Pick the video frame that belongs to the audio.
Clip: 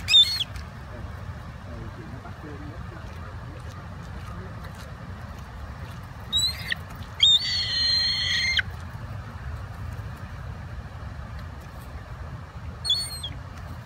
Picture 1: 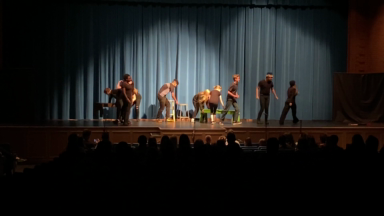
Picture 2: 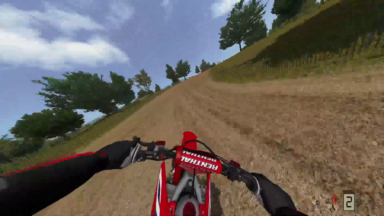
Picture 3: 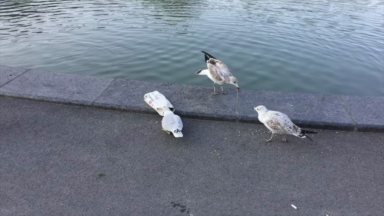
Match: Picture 3